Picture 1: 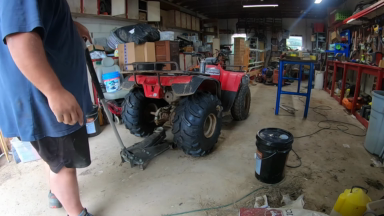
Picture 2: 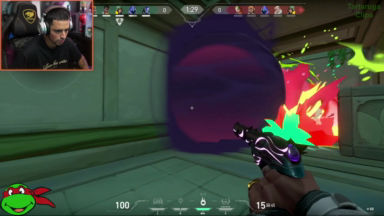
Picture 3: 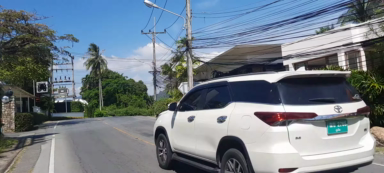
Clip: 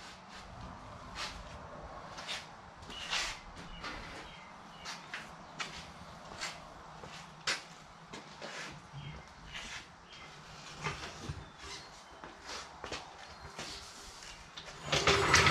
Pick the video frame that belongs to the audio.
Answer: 1